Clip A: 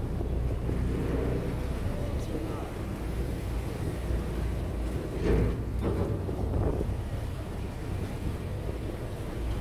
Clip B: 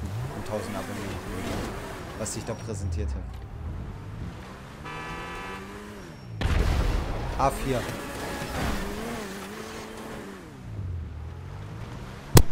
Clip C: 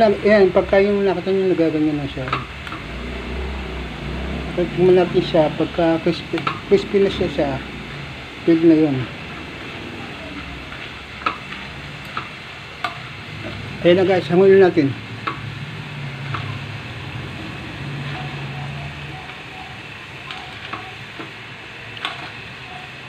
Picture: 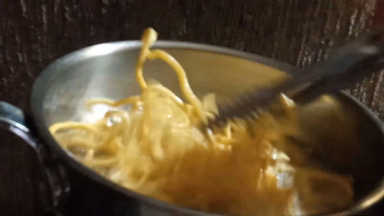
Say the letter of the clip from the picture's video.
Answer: C